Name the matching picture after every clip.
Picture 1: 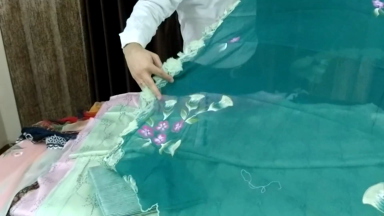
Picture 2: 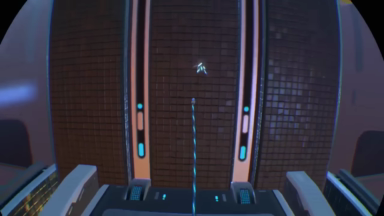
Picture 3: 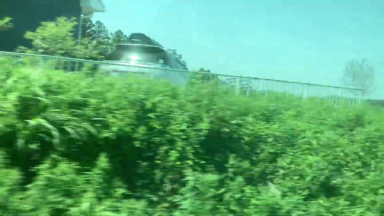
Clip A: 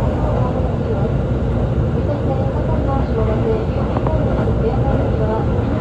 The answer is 3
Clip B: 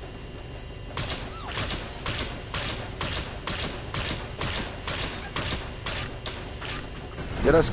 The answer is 2